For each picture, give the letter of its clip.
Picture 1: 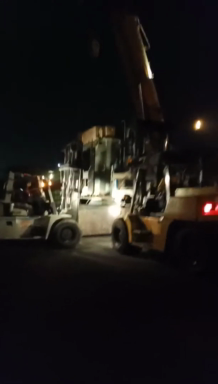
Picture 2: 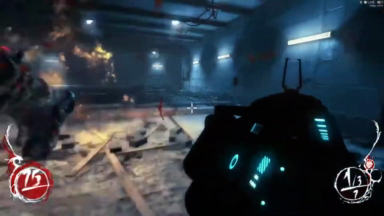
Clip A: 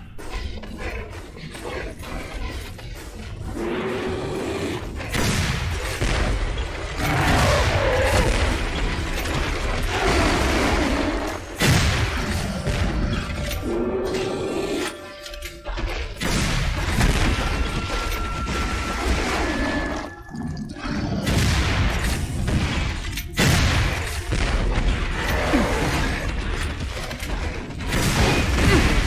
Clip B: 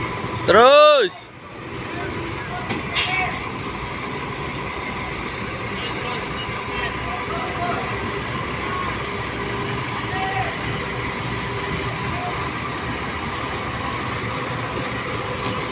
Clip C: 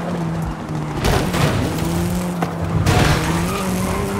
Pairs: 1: B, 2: A